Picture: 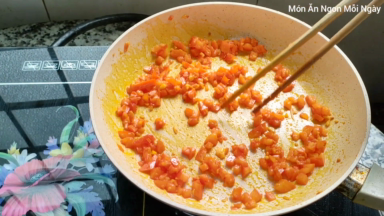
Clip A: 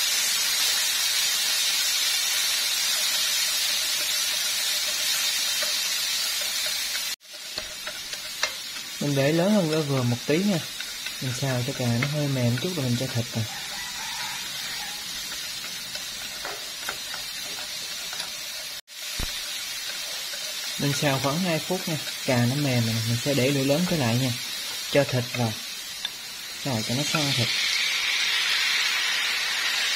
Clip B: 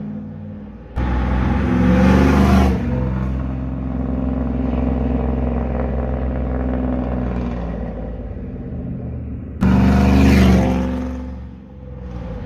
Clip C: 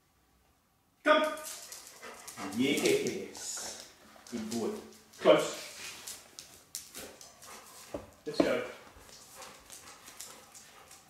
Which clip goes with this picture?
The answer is A